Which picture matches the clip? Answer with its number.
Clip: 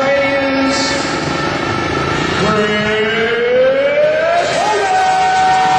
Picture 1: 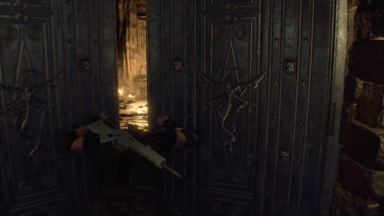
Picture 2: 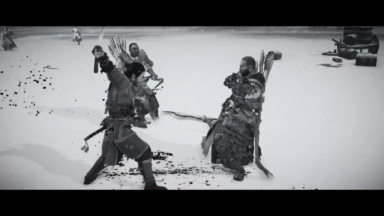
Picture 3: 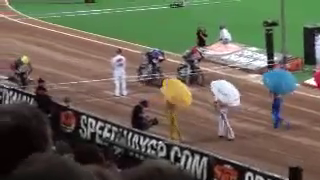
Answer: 3